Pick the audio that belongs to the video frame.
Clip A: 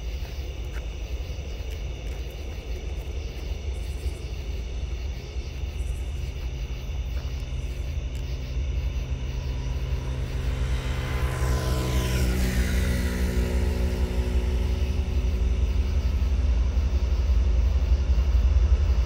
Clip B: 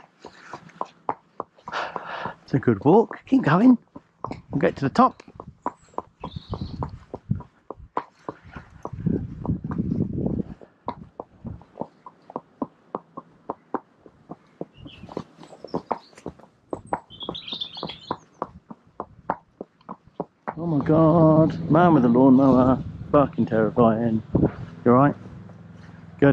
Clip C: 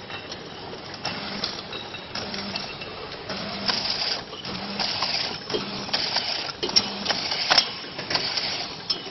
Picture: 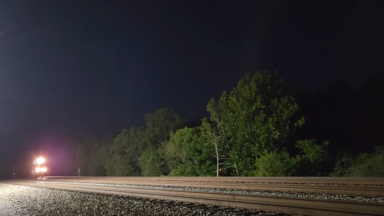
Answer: A